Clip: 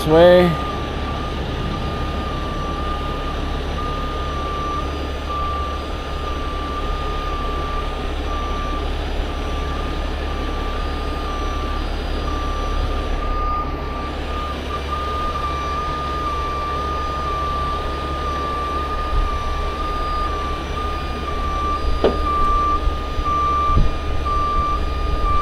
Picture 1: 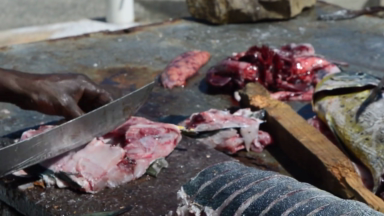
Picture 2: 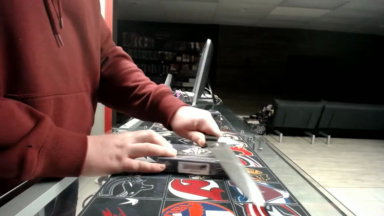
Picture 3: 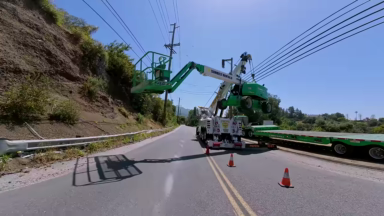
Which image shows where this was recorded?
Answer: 3